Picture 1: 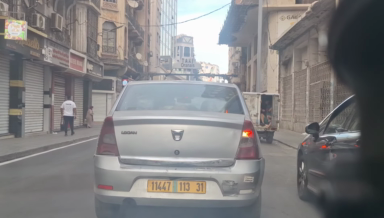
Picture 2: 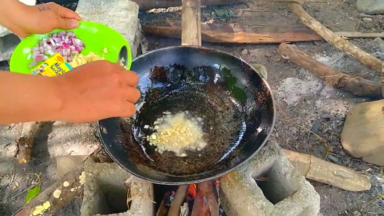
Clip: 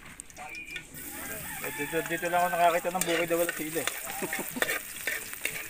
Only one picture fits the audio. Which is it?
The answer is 2